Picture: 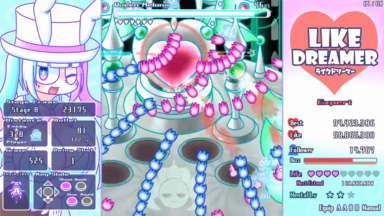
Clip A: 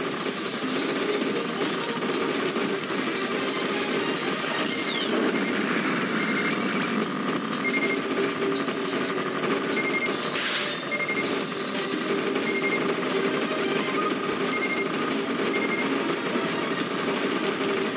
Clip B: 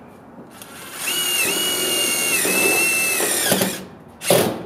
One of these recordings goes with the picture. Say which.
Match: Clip A